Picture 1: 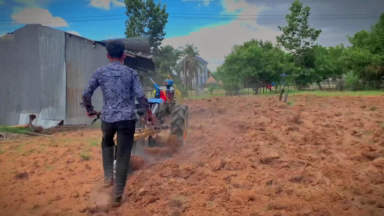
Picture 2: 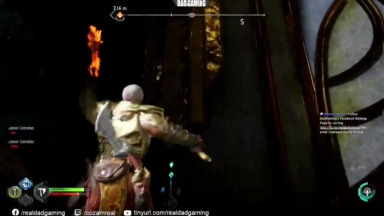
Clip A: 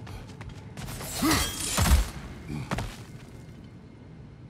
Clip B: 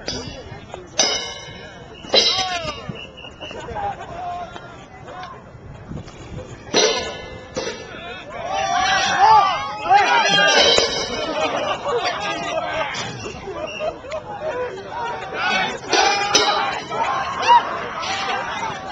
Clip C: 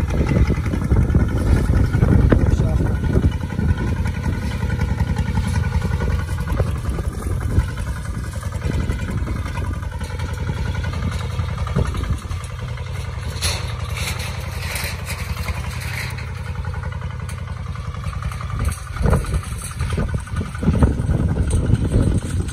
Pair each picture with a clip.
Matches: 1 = C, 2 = A